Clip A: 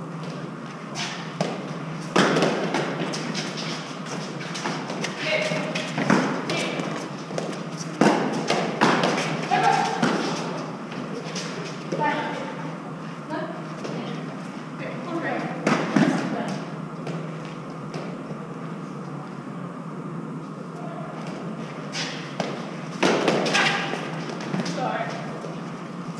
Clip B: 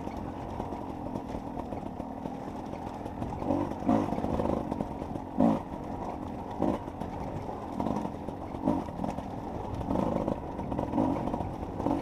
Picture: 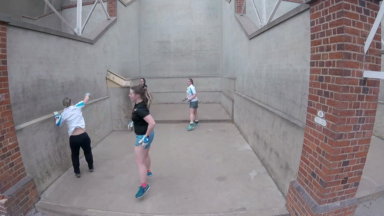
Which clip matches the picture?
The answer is A